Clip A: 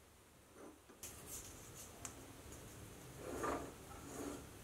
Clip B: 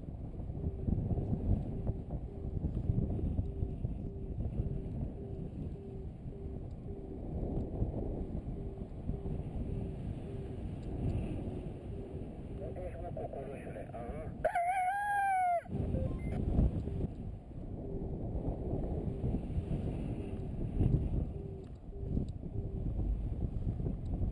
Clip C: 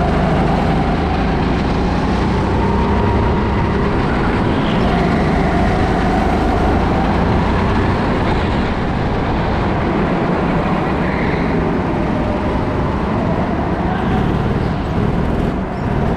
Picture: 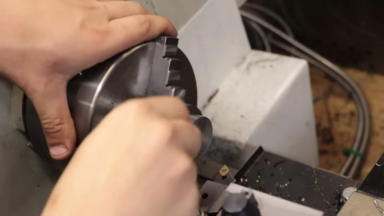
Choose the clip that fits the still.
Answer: A